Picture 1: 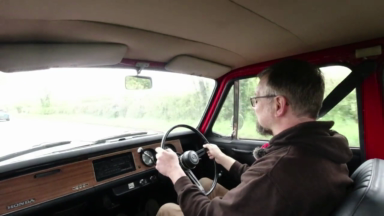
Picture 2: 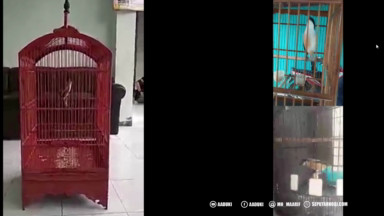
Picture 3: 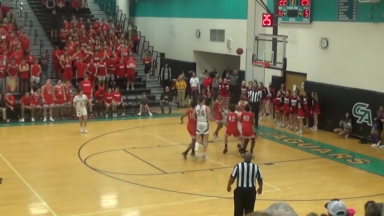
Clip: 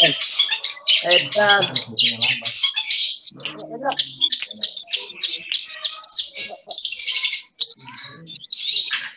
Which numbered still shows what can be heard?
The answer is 2